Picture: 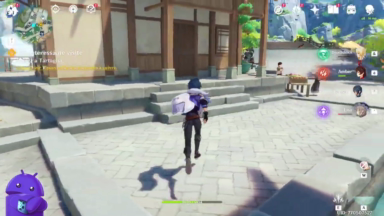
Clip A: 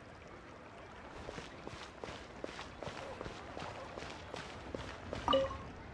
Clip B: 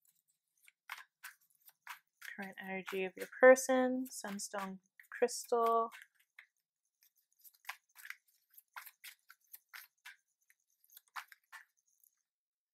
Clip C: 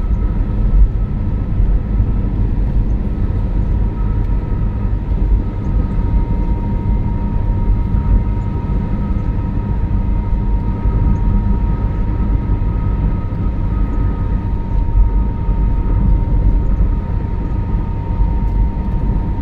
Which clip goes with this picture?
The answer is A